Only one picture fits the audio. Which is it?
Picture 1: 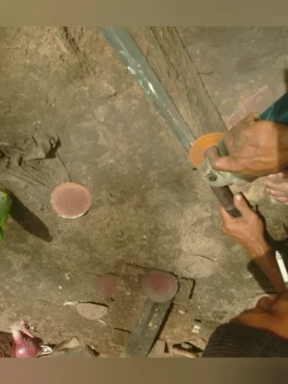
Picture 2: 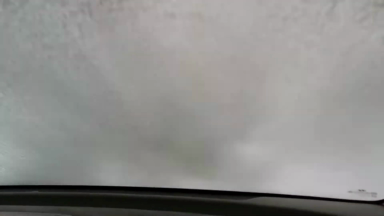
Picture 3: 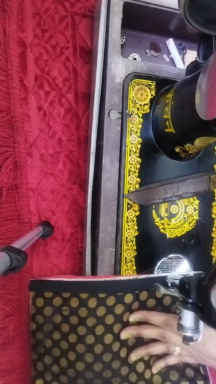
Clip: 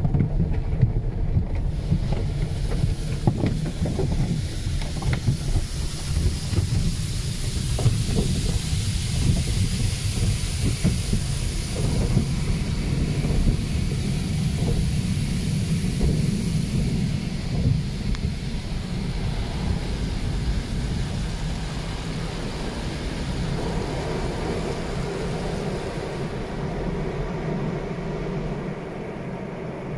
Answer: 2